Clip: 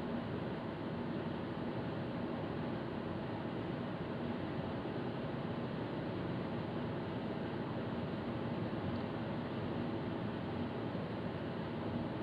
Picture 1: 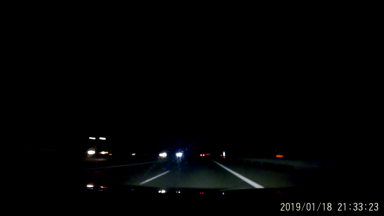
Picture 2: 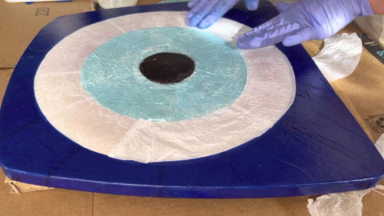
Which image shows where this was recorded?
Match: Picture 1